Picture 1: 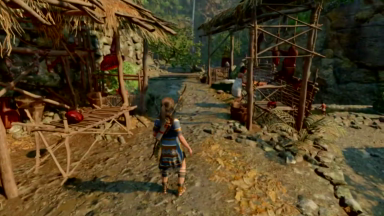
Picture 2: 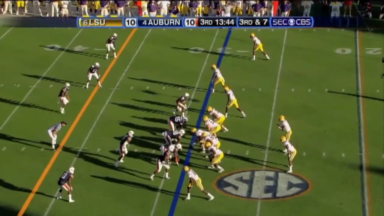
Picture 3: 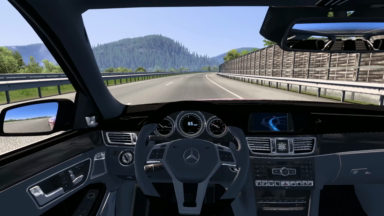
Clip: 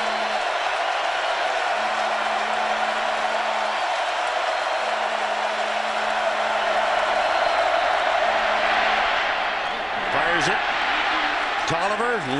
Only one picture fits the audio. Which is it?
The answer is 2